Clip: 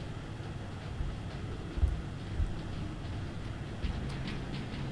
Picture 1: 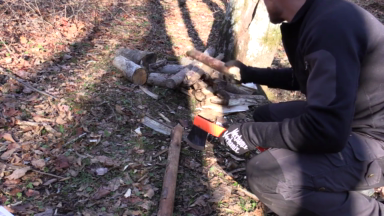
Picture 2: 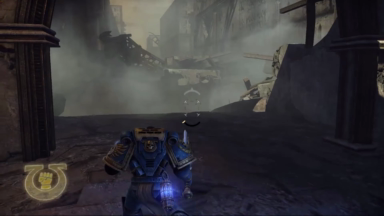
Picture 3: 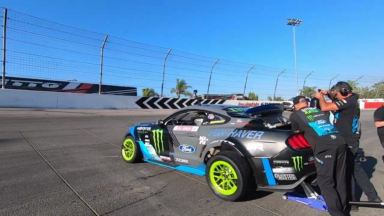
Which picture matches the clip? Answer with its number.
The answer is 2